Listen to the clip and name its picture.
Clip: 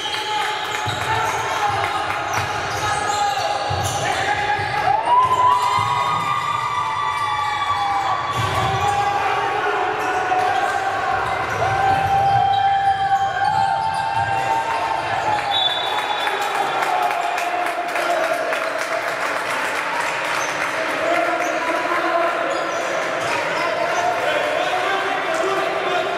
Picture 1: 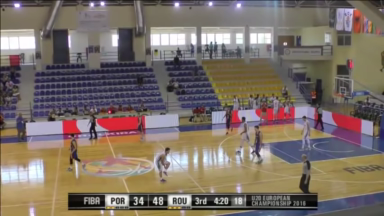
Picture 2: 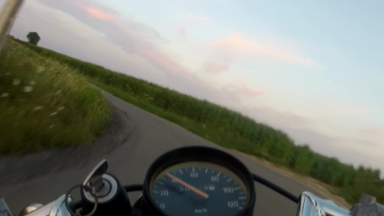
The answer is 1